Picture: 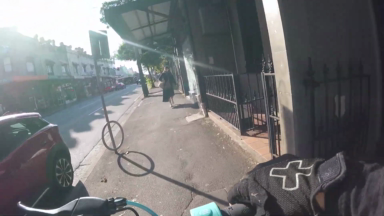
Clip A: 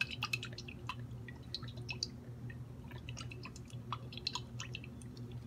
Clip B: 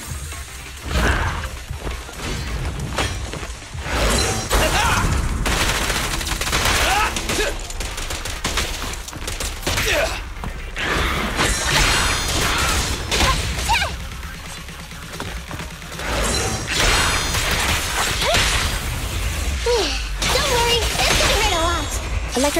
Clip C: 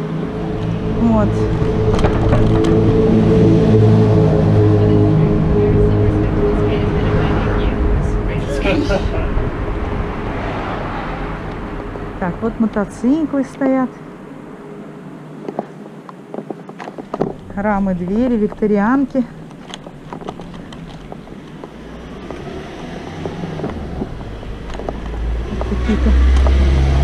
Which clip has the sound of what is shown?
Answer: C